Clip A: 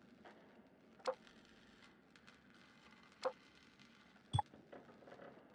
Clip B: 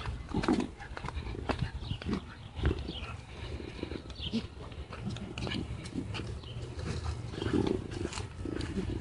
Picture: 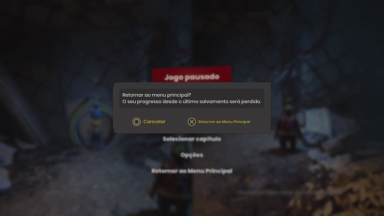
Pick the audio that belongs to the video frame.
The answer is A